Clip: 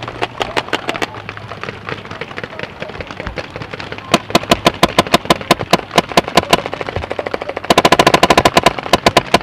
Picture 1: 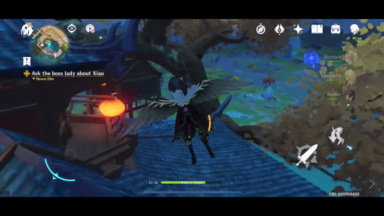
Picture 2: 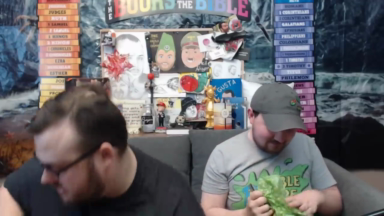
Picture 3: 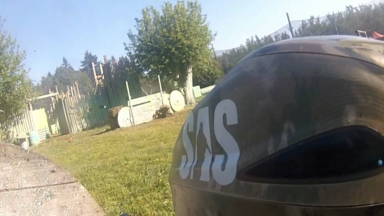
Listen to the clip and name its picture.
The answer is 3